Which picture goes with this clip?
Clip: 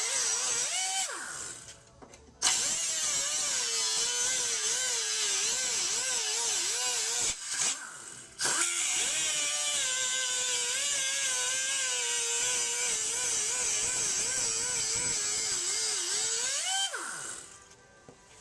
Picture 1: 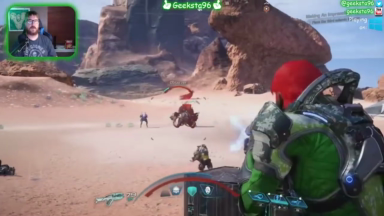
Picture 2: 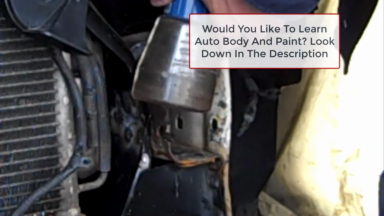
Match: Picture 2